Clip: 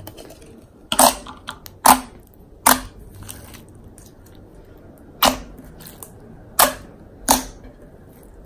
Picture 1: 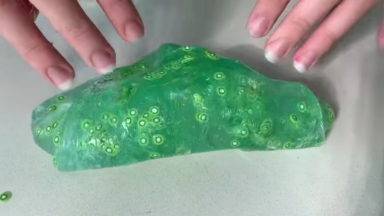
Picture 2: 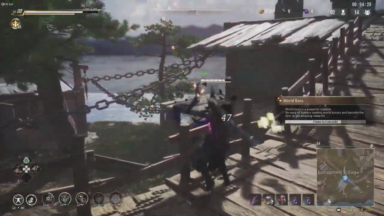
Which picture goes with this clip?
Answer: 1